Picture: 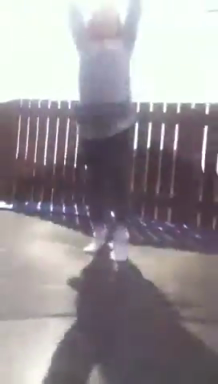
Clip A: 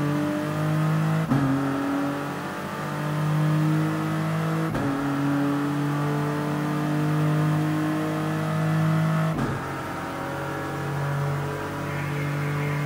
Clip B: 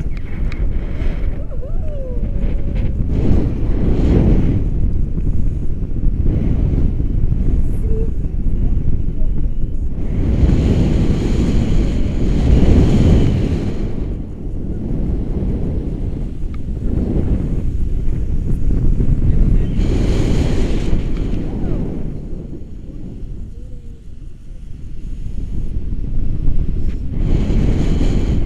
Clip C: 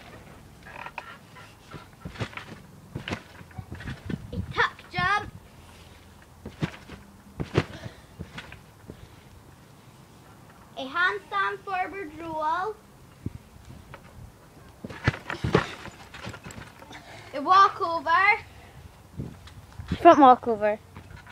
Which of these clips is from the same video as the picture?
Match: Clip C